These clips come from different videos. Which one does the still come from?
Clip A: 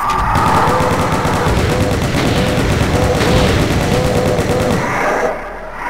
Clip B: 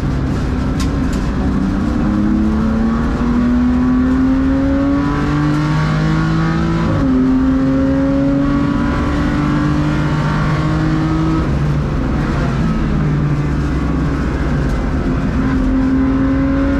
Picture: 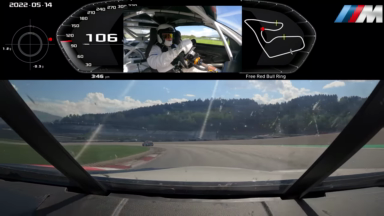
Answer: B